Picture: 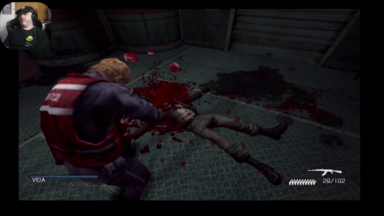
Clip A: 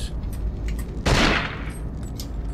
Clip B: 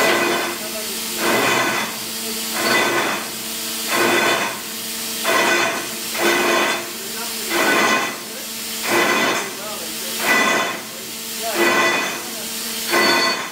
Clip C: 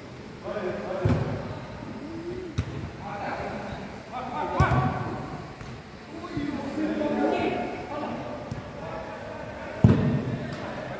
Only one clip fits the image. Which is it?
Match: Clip A